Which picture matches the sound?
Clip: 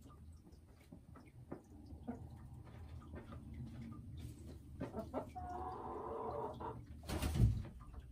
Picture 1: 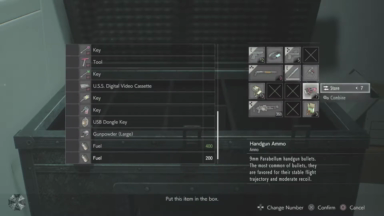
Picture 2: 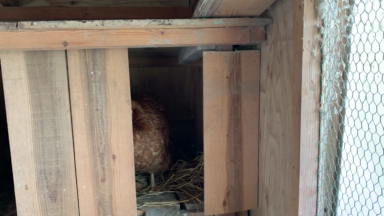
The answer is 2